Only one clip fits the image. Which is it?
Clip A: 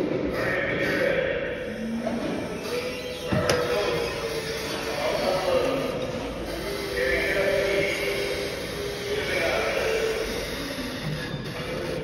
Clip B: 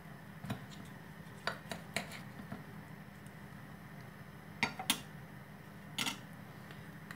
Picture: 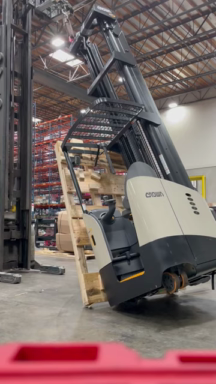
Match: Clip A